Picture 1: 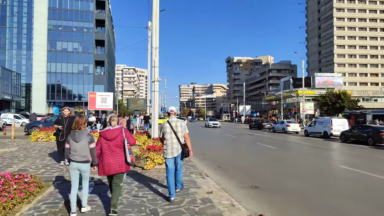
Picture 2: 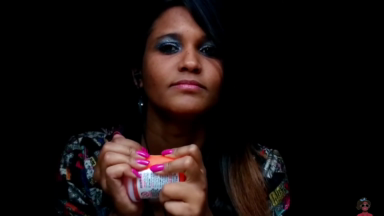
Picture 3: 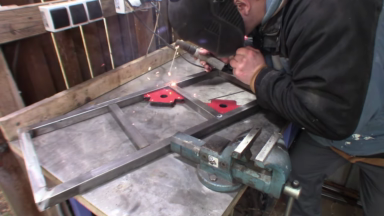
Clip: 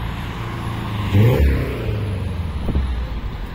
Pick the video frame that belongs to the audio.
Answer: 1